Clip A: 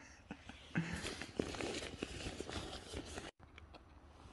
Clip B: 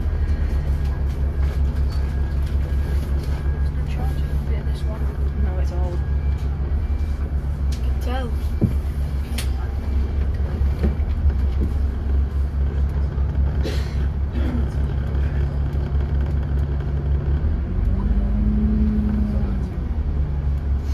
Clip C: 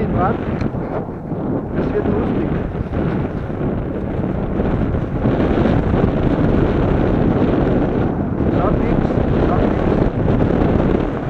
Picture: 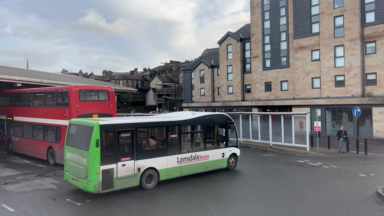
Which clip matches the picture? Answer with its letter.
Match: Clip B